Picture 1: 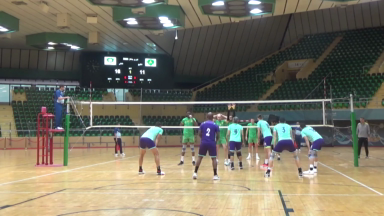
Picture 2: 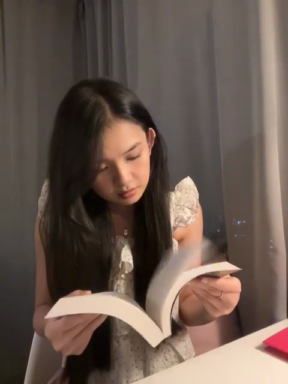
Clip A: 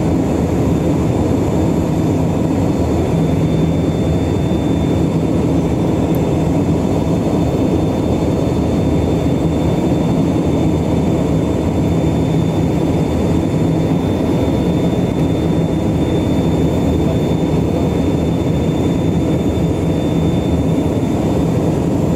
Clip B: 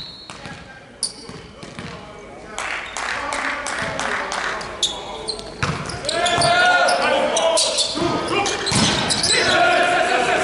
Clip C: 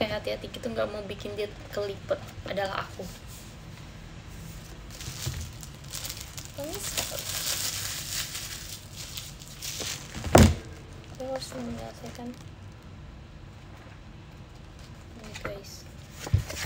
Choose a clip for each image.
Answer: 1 B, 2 C